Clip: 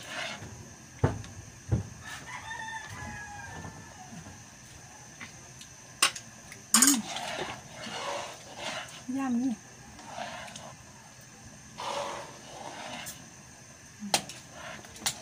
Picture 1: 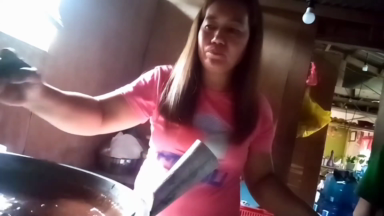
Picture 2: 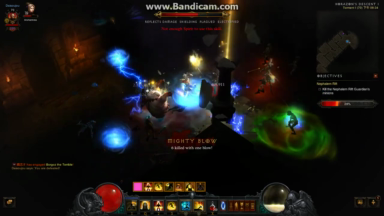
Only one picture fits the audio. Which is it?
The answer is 1